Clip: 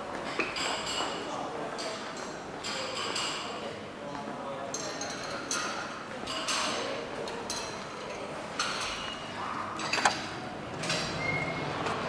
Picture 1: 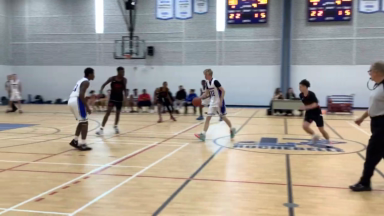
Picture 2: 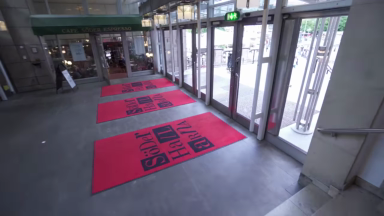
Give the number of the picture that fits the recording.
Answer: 2